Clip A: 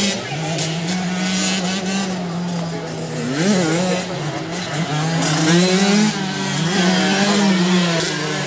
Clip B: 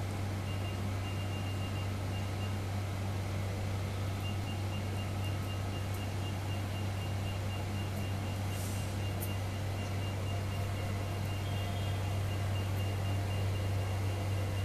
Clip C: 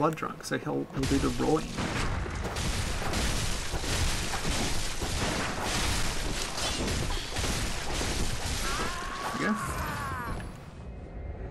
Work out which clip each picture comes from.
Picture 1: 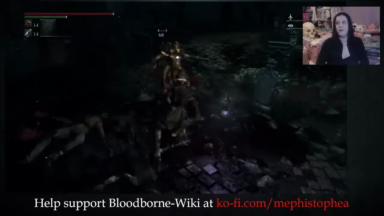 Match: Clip C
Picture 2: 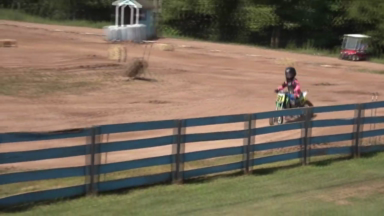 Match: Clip A